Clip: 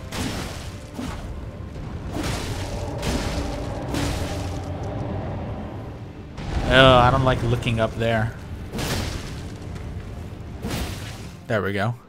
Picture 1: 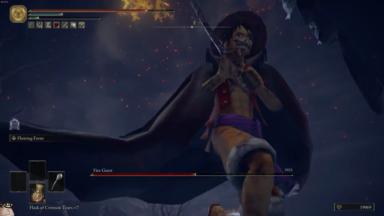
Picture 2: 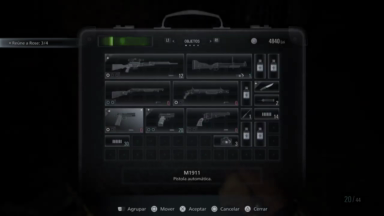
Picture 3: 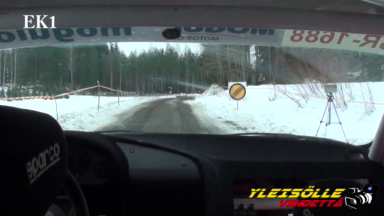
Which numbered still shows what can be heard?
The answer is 1